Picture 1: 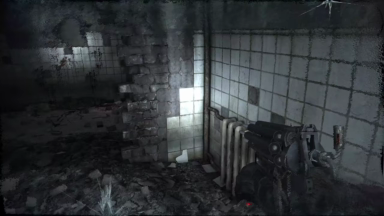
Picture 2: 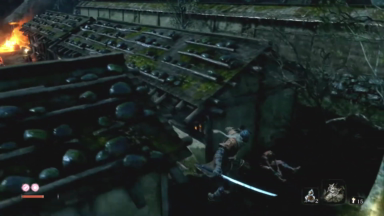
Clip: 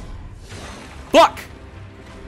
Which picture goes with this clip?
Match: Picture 2